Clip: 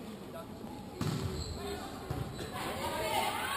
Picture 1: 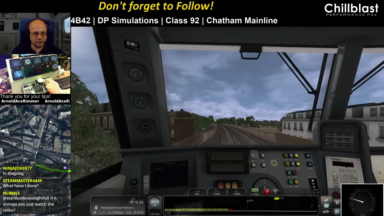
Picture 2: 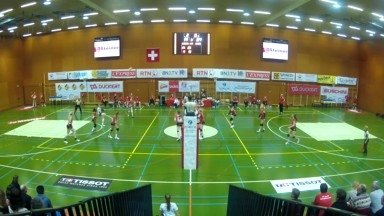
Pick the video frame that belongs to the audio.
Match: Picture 2